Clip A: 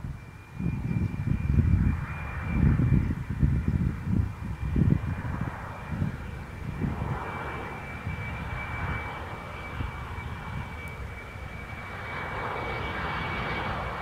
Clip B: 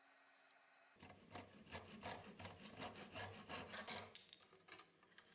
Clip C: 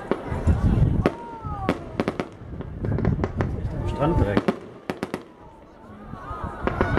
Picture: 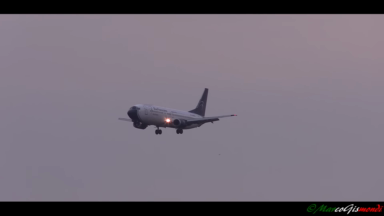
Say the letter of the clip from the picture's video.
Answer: A